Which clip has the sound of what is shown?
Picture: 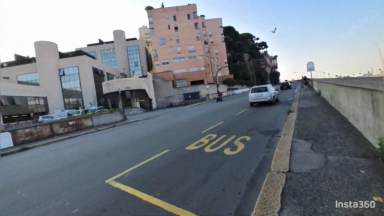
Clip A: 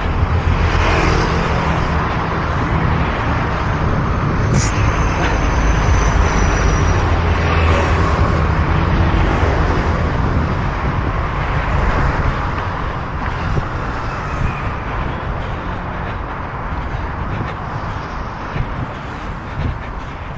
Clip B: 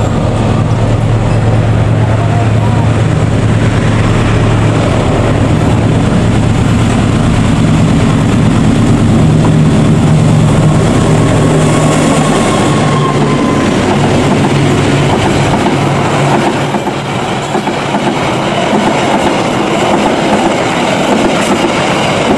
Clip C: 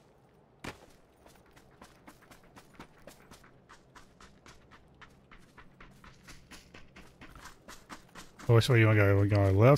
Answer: A